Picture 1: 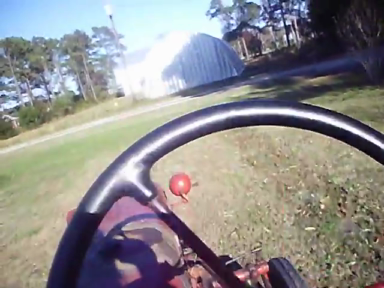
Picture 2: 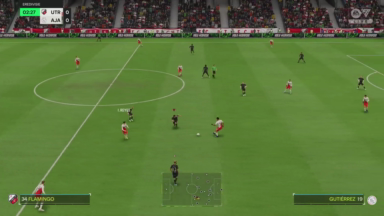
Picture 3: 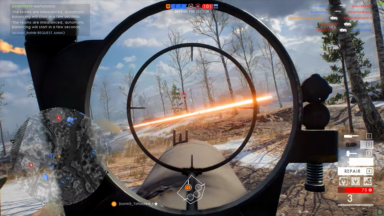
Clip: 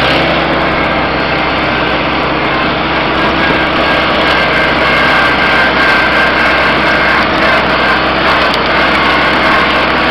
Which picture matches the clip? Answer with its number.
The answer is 1